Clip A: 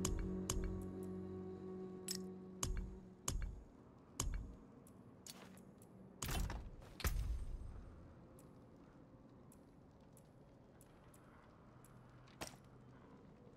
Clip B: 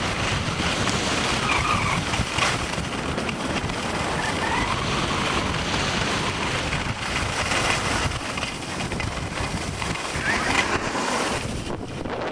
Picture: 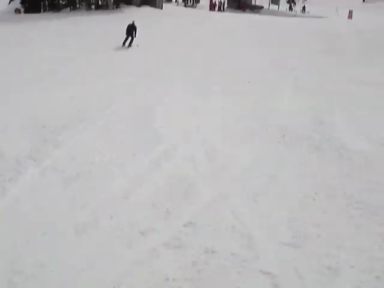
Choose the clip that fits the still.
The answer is B